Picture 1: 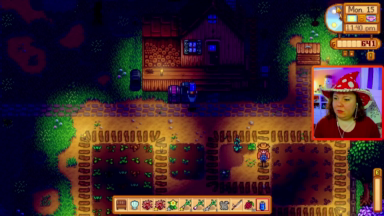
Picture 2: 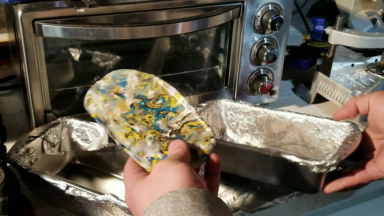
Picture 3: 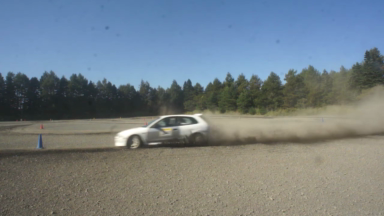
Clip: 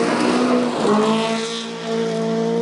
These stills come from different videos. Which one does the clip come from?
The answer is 3